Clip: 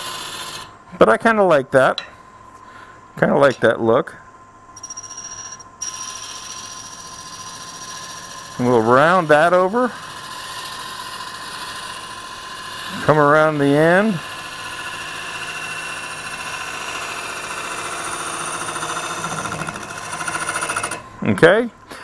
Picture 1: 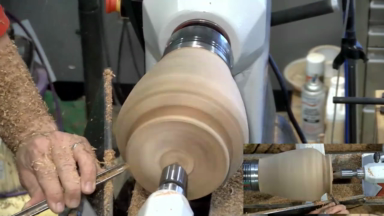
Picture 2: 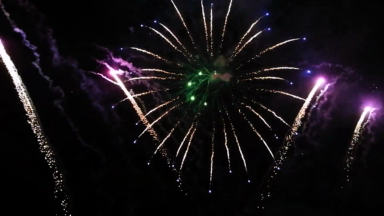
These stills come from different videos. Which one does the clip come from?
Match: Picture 1